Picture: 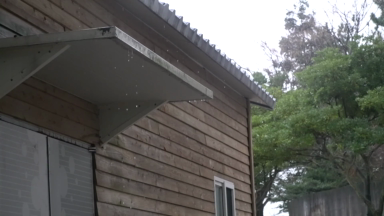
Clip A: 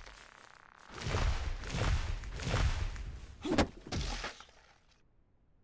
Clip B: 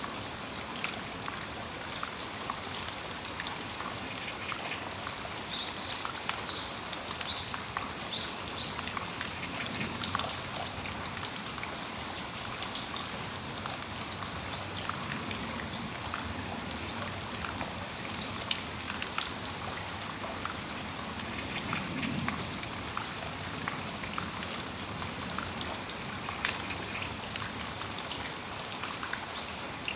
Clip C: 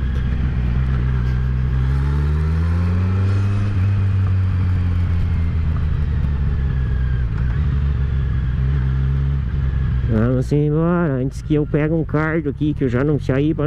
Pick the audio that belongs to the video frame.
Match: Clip B